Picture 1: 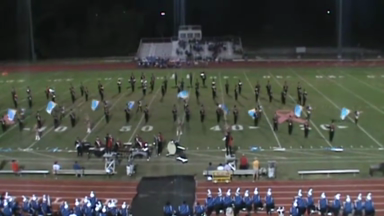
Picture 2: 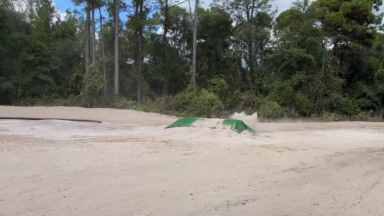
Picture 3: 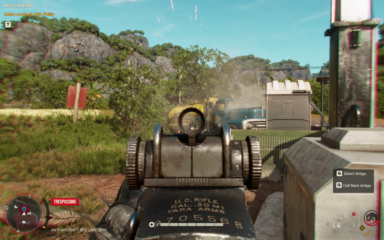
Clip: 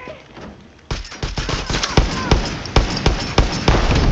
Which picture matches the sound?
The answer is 3